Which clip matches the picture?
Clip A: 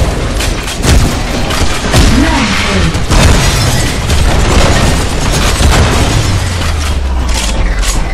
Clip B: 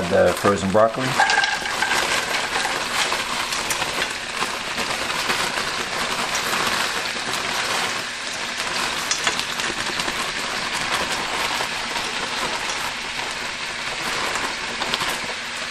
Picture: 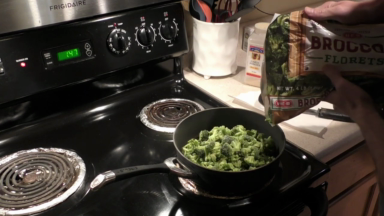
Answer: B